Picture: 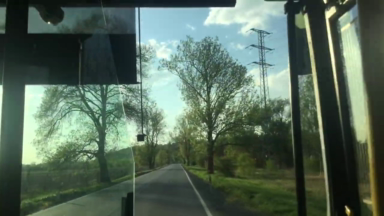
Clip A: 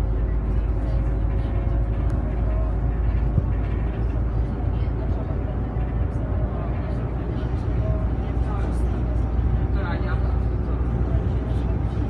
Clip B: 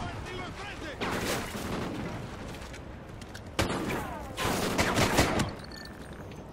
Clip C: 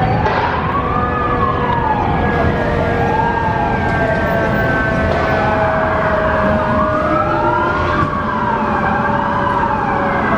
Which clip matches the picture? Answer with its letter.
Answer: A